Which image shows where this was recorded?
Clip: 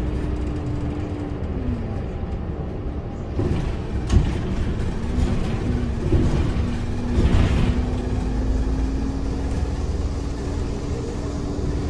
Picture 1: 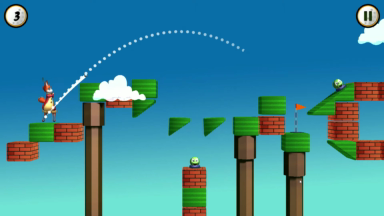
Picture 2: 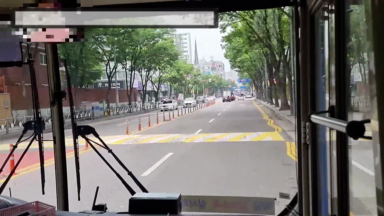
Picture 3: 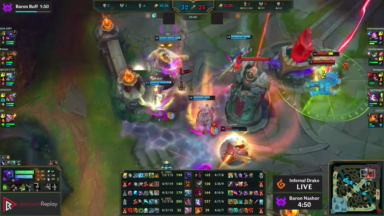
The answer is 2